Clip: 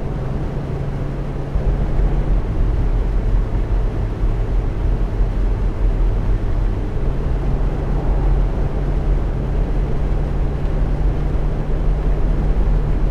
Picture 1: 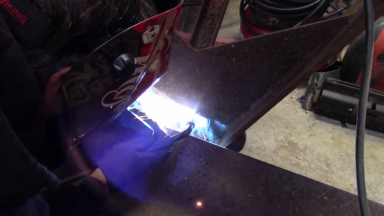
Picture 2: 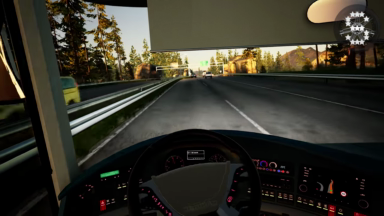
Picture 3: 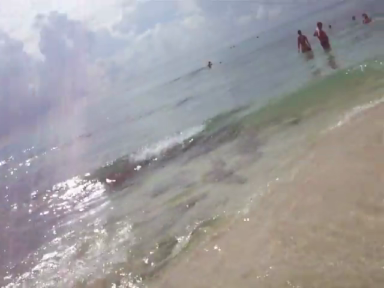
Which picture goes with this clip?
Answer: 2